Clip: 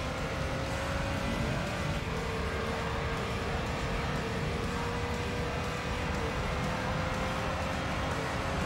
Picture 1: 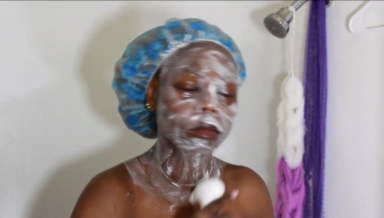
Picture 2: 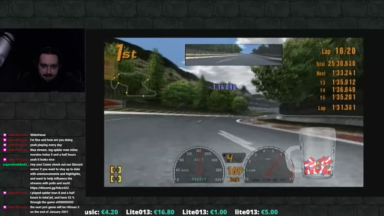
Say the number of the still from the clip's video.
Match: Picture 2